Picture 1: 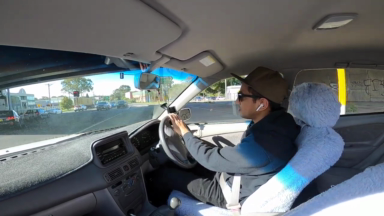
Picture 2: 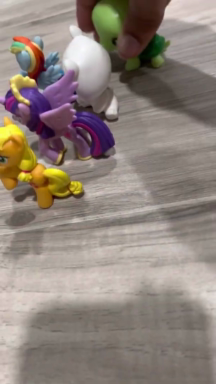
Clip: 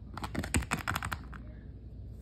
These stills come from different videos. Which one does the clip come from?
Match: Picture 2